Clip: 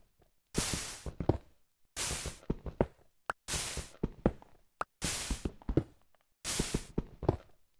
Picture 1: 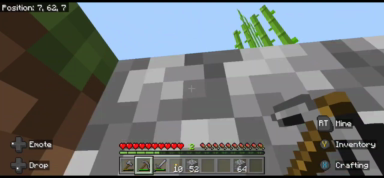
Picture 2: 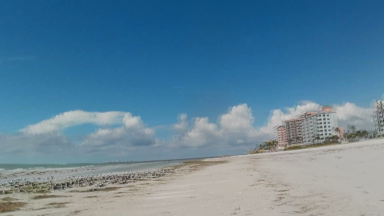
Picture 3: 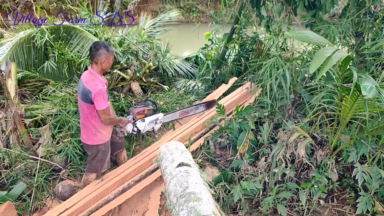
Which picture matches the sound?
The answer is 1